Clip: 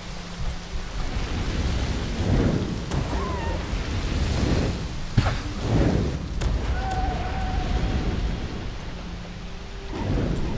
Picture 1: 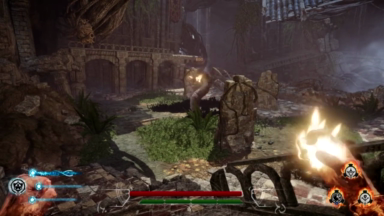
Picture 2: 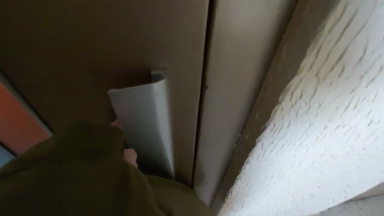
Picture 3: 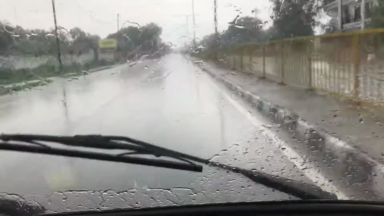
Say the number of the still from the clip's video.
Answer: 1